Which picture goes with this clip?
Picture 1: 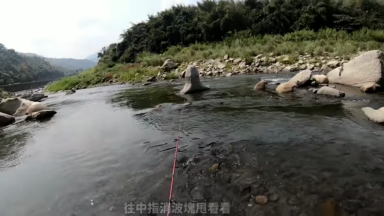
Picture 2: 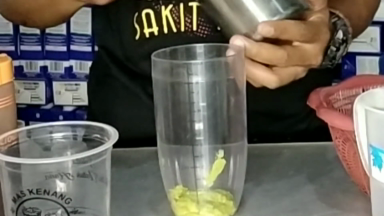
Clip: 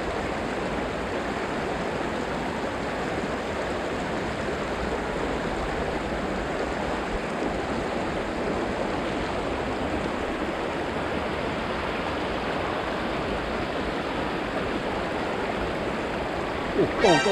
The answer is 1